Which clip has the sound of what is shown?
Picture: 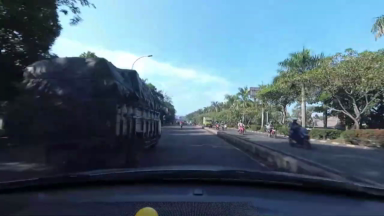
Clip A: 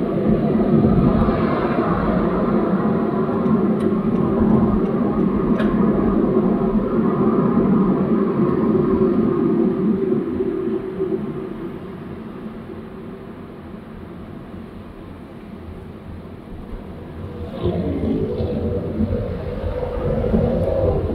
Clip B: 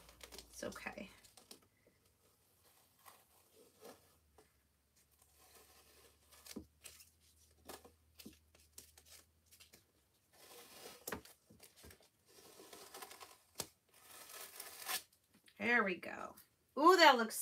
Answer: A